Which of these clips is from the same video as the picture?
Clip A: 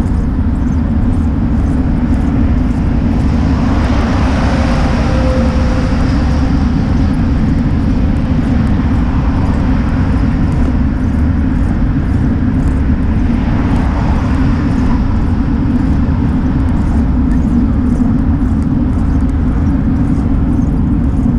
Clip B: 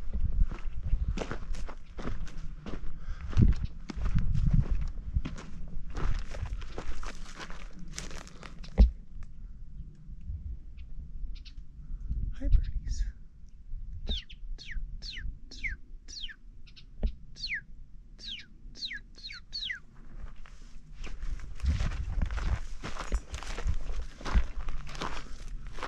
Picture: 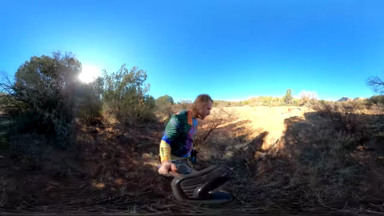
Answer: B